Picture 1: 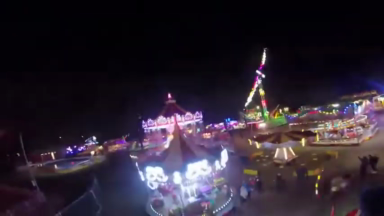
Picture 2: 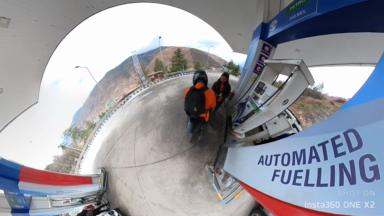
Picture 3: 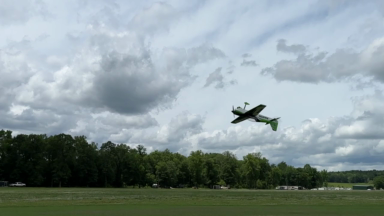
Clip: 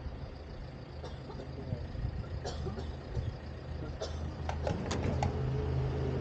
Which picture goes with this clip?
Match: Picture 2